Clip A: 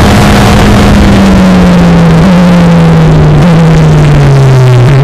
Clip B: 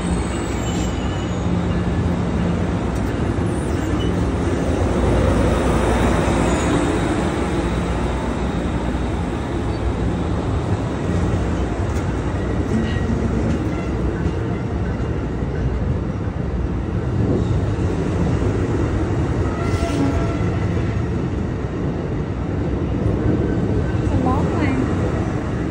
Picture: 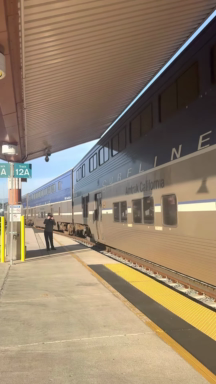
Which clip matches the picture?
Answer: B